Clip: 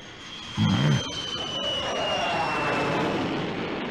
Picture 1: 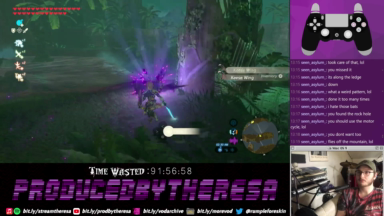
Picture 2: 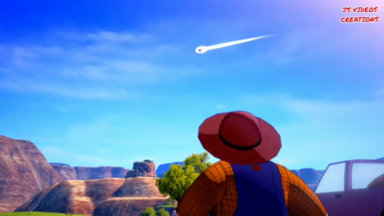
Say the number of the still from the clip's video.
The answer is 2